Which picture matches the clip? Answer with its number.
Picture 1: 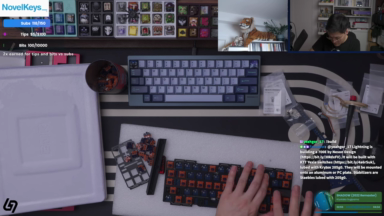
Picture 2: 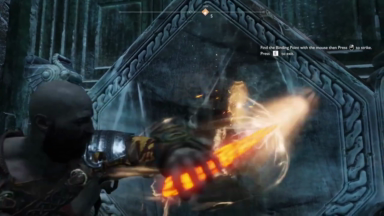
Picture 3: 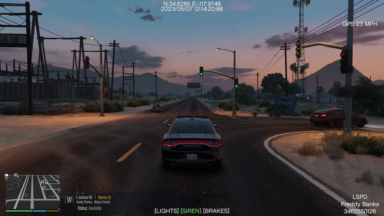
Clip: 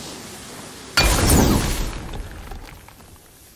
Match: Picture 2